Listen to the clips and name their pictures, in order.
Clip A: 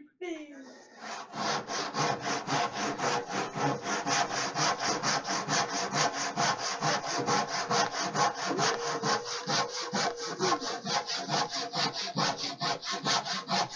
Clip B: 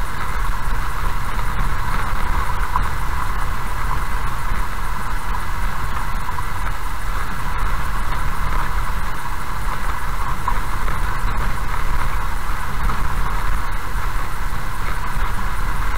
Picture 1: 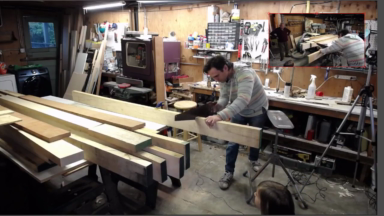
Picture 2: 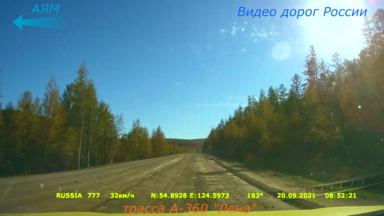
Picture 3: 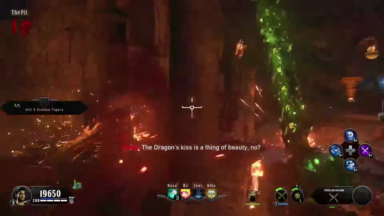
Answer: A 1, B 2